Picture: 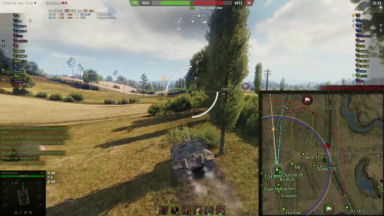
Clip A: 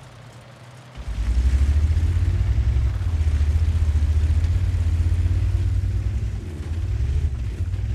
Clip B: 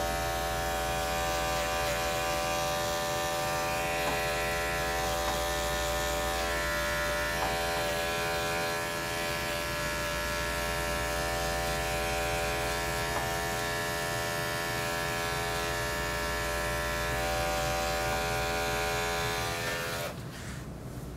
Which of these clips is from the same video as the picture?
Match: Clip A